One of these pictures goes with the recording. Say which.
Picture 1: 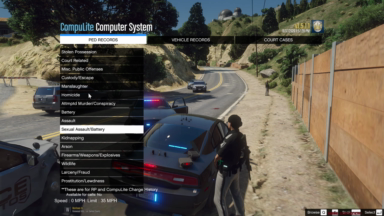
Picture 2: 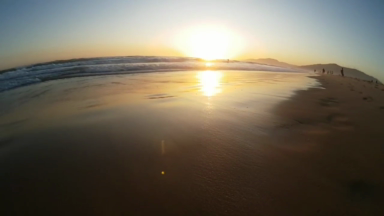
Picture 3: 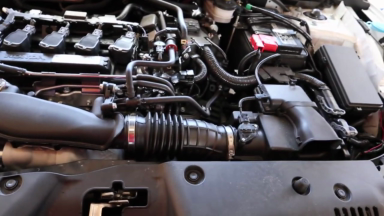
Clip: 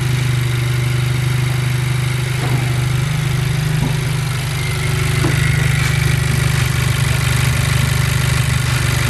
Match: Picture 3